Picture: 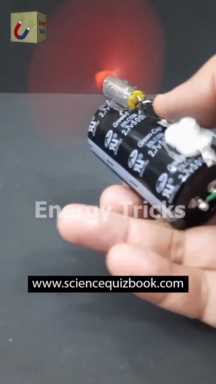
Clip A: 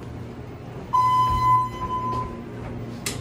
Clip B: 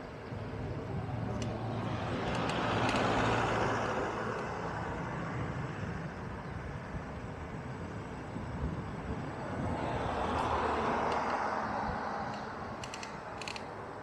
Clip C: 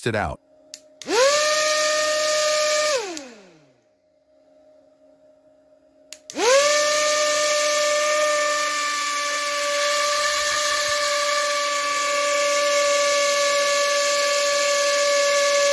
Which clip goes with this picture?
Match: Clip C